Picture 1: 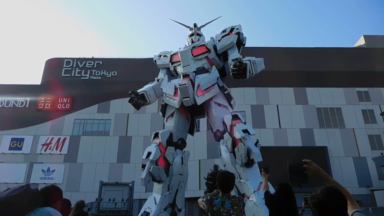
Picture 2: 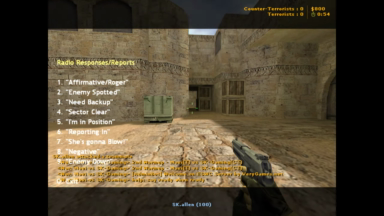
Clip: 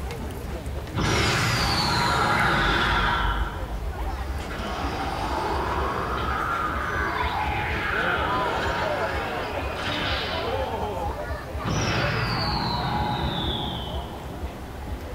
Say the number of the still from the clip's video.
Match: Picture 1